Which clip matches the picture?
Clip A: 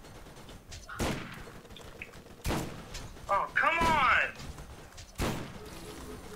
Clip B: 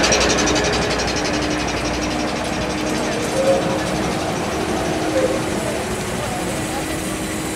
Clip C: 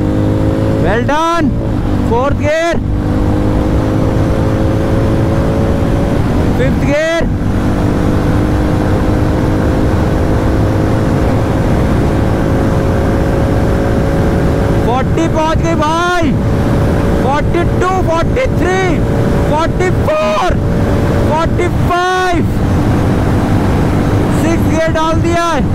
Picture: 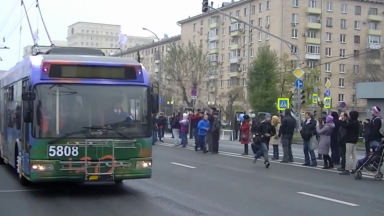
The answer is B